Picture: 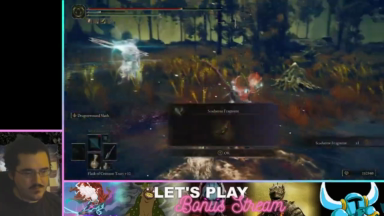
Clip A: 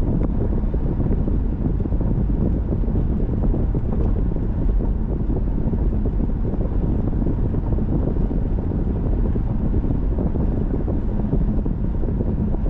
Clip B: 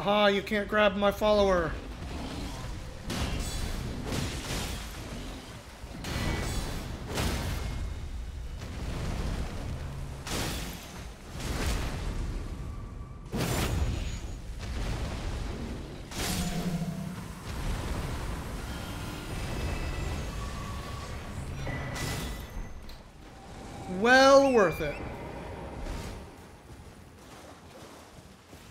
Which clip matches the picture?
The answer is B